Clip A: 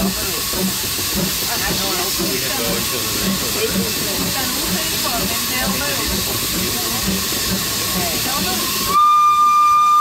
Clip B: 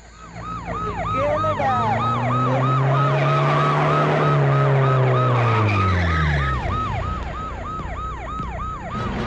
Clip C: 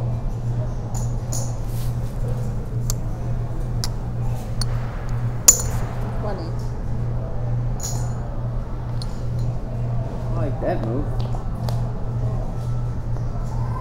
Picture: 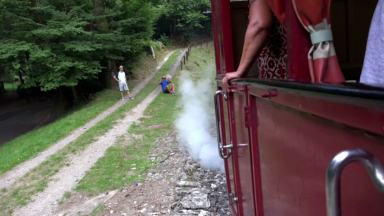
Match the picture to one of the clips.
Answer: A